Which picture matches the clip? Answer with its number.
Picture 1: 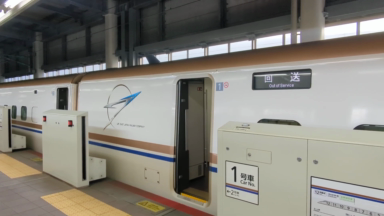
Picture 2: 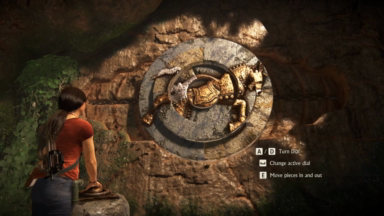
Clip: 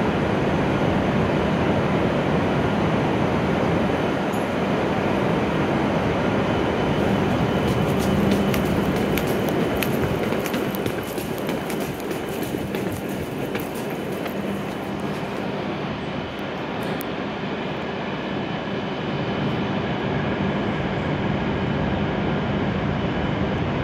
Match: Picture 1